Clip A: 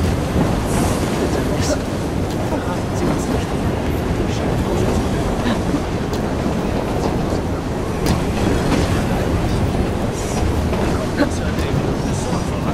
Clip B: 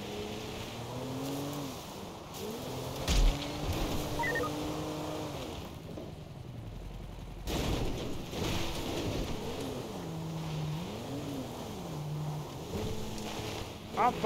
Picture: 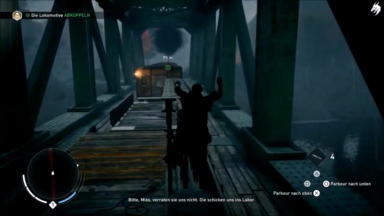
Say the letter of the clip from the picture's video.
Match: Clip A